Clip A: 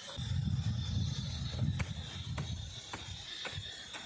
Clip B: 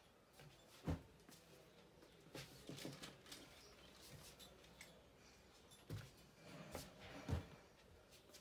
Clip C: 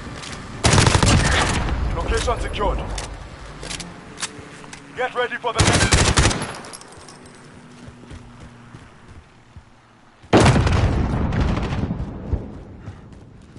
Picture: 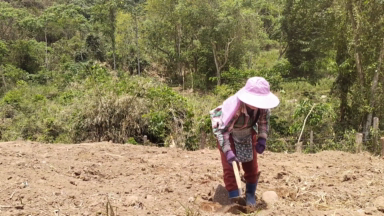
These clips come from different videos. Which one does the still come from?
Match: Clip A